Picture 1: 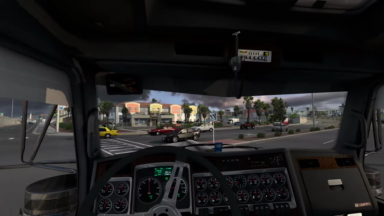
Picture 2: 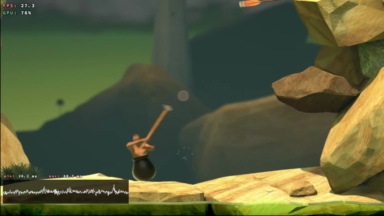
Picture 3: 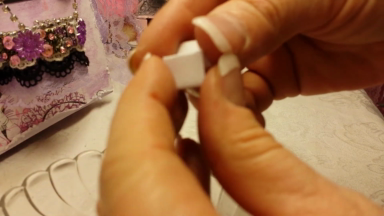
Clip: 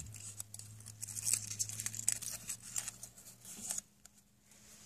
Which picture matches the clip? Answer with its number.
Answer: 3